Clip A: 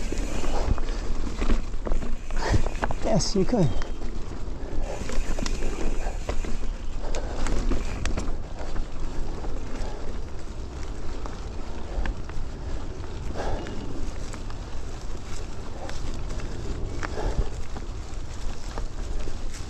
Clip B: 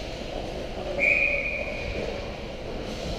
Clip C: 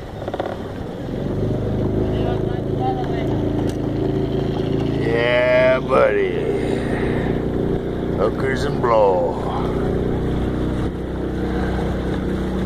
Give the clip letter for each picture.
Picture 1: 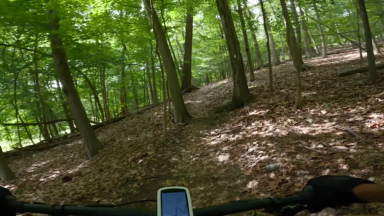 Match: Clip A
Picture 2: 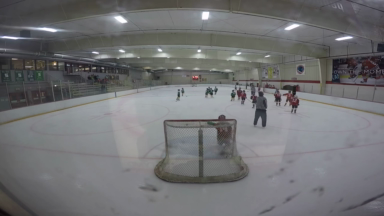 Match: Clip B